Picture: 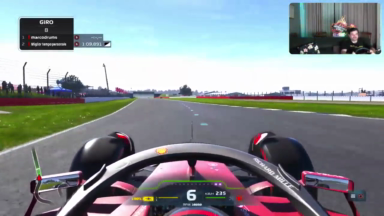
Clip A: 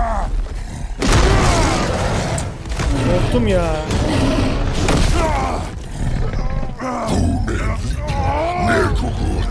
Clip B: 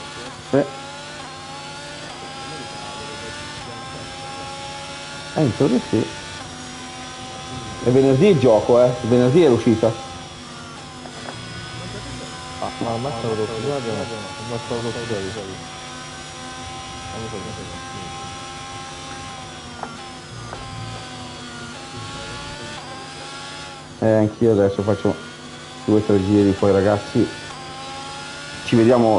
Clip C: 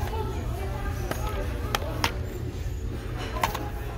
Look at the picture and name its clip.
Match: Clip B